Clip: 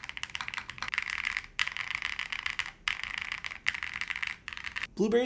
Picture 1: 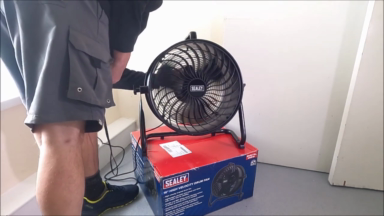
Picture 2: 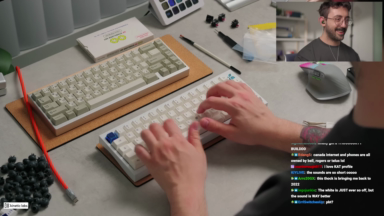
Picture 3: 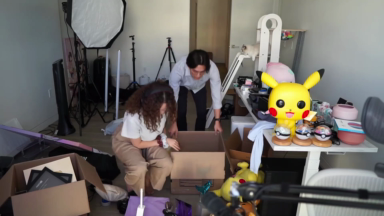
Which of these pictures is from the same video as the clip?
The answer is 2